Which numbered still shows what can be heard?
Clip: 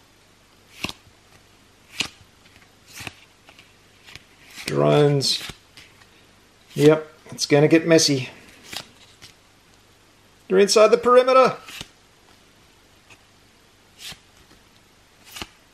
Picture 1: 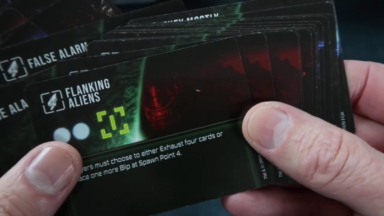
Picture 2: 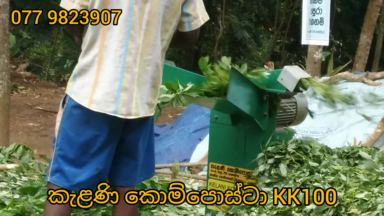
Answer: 1